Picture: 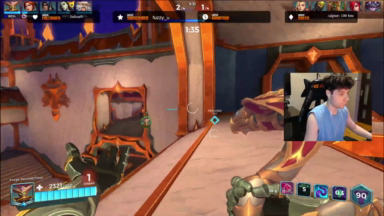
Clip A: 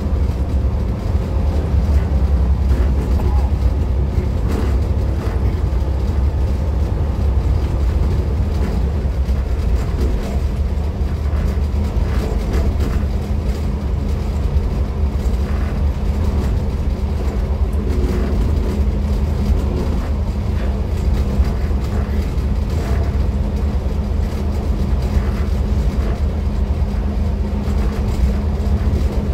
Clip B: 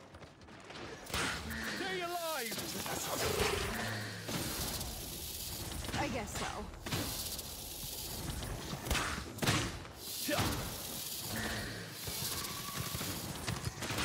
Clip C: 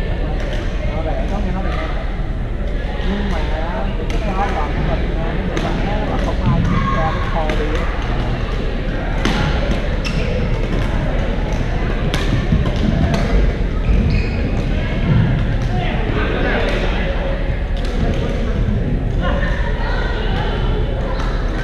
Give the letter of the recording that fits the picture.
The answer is B